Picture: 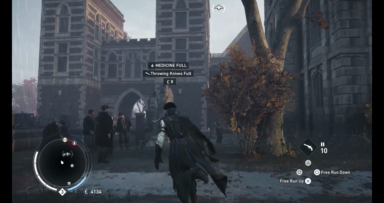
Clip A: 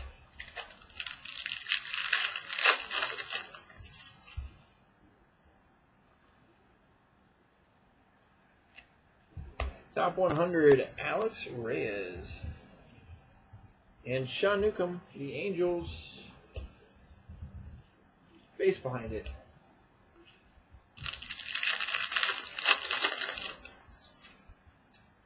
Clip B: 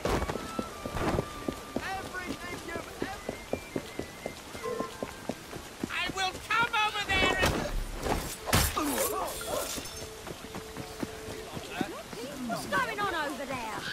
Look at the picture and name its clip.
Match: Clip B